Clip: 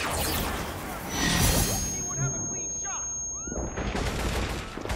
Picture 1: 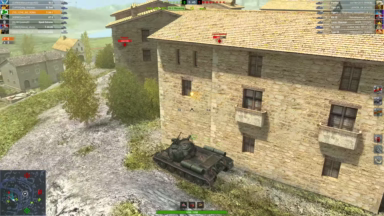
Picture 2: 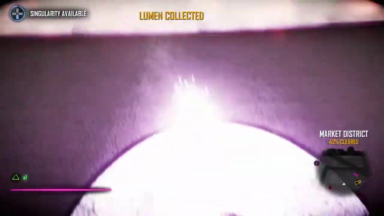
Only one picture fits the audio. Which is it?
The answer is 2